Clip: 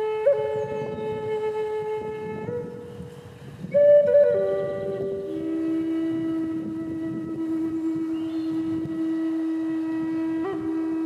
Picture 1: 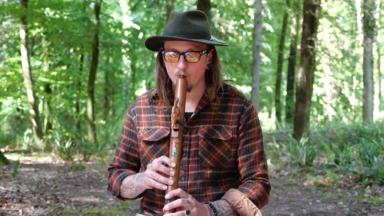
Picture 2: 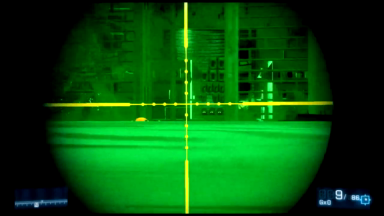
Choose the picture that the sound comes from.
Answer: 1